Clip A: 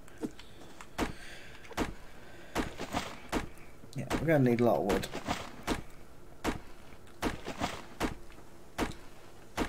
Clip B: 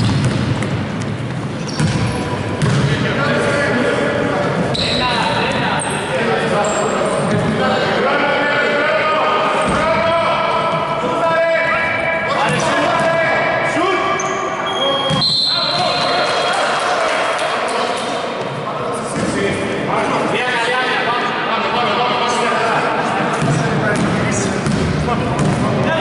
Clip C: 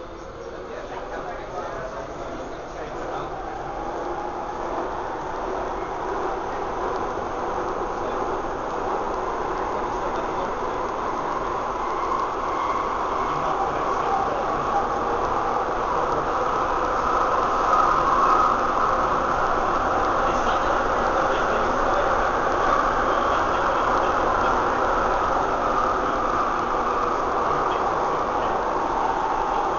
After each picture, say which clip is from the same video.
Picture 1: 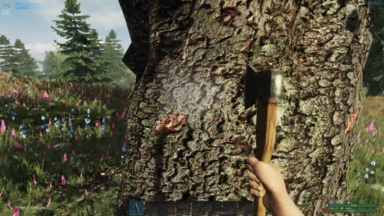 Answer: A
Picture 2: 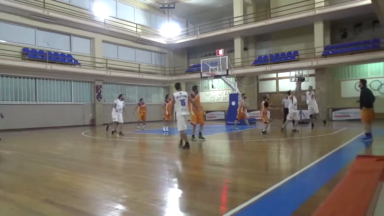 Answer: B